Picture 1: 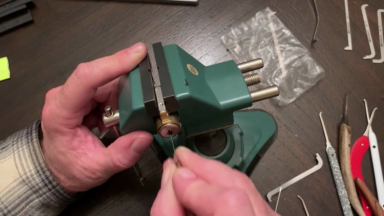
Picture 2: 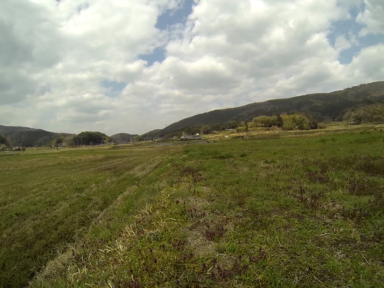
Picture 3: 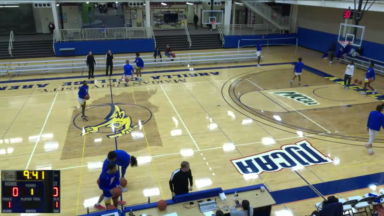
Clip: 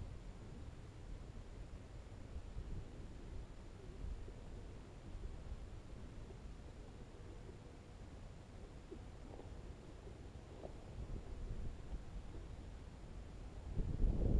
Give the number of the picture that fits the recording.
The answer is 2